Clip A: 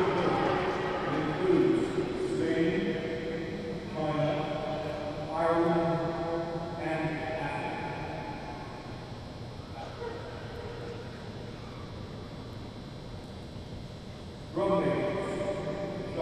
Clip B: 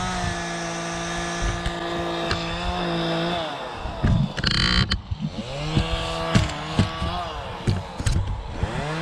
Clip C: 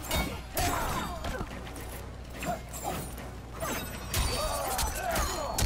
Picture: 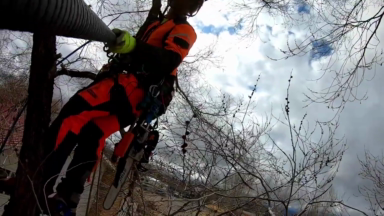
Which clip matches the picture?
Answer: B